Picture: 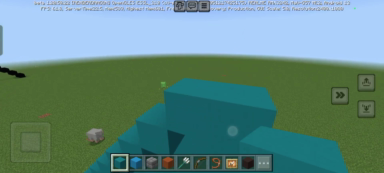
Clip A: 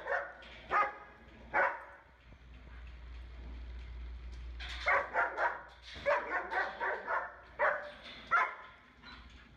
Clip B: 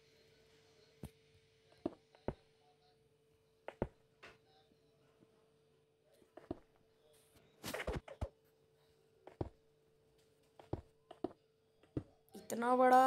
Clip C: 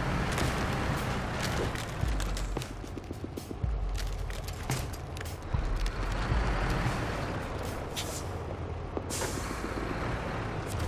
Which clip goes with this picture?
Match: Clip B